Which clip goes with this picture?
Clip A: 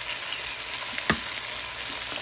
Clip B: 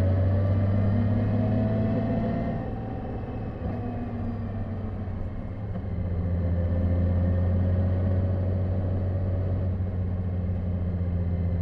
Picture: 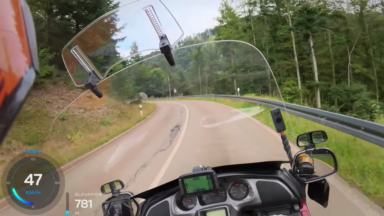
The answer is B